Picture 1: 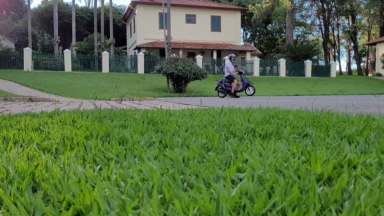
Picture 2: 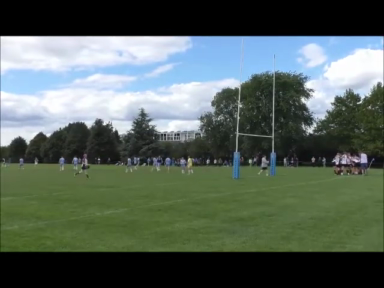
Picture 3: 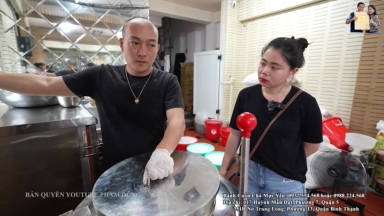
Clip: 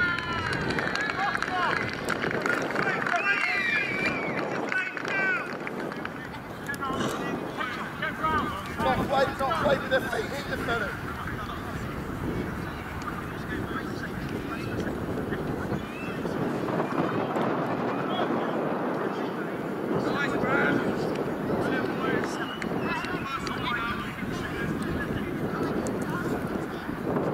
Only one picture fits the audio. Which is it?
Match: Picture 2